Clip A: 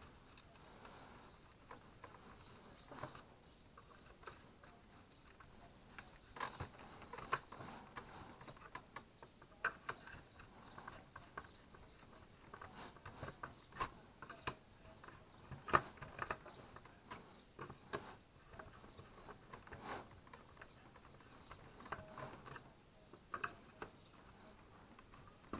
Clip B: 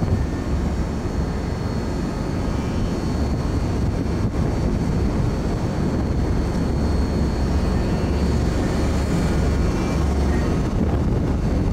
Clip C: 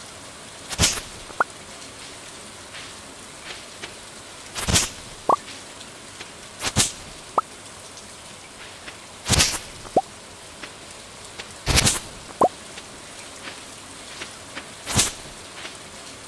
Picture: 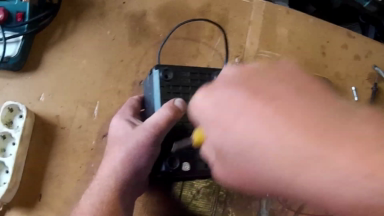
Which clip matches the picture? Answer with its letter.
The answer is A